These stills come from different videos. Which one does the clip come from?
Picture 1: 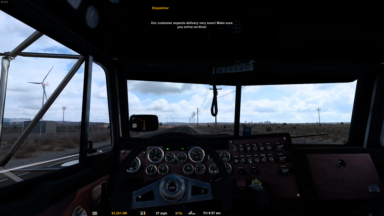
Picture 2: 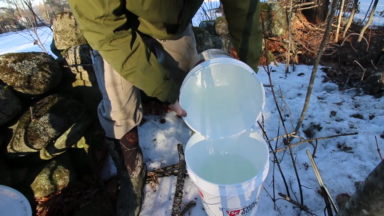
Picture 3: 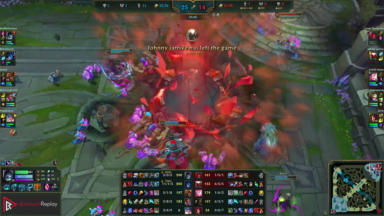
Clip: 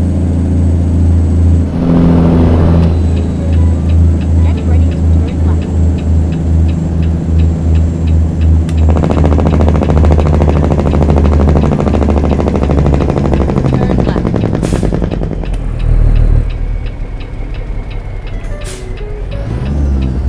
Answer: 1